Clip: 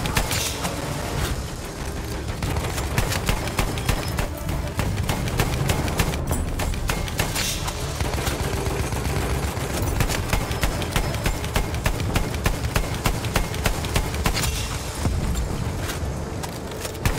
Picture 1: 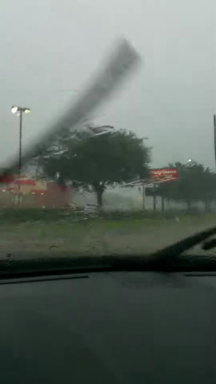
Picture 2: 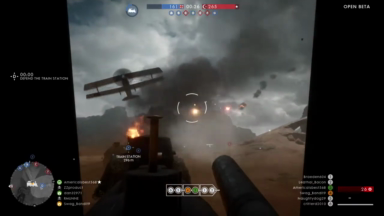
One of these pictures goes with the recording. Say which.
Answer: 2